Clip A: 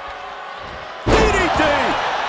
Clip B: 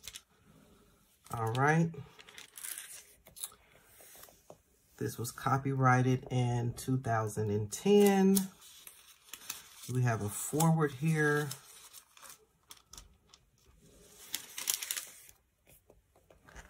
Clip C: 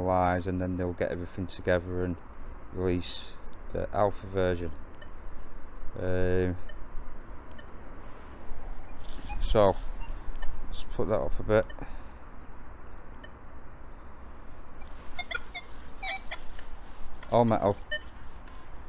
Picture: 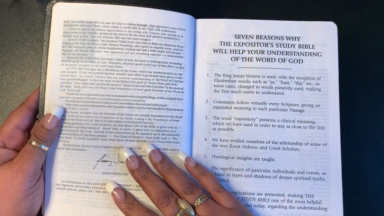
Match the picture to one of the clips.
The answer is B